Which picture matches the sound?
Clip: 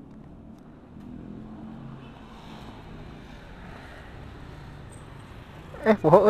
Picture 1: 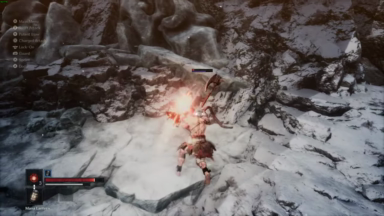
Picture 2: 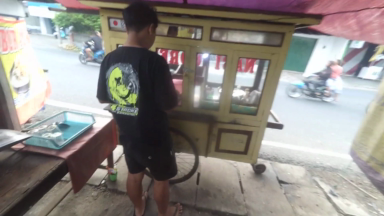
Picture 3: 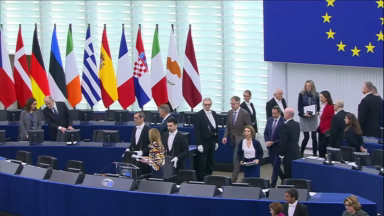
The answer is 2